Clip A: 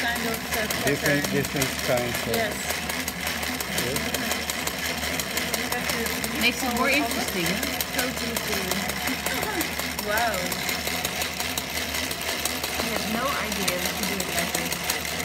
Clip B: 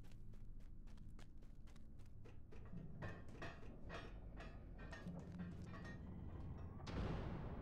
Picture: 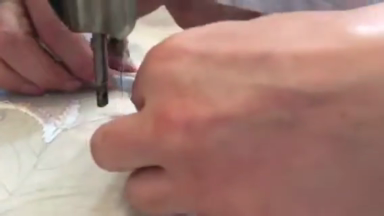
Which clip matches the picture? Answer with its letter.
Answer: A